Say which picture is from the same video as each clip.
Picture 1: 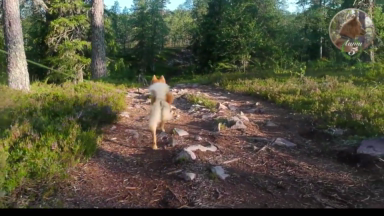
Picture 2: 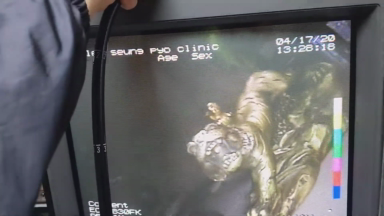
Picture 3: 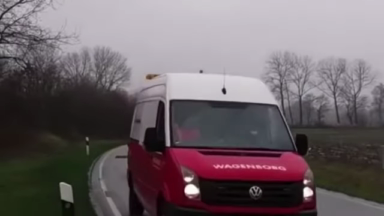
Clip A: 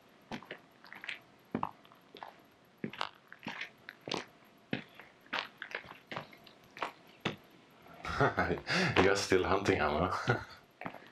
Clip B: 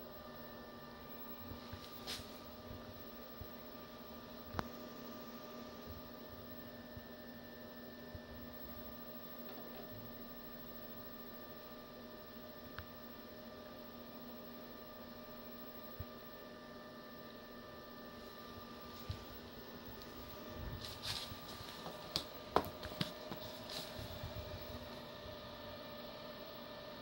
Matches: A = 1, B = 2